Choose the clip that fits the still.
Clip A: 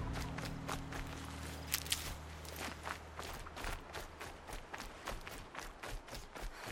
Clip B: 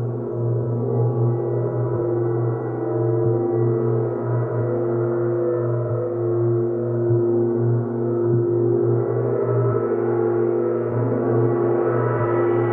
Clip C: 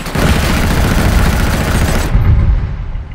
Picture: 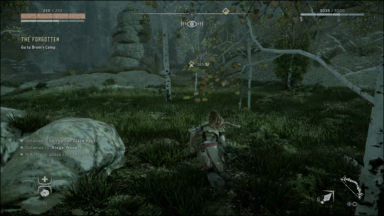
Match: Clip A